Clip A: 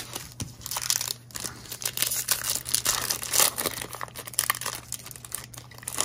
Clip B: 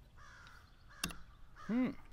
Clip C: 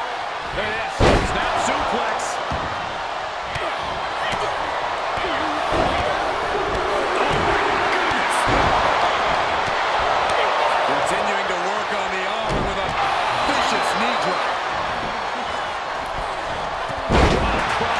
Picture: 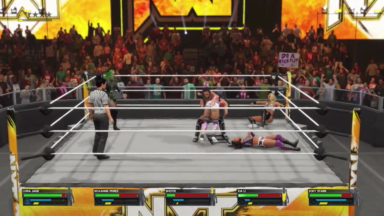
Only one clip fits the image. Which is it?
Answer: C